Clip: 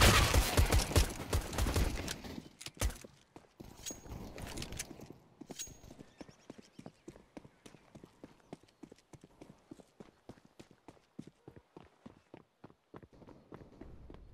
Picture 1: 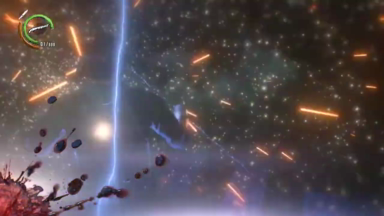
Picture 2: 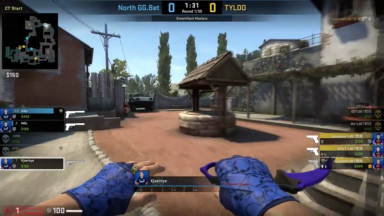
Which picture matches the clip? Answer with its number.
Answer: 2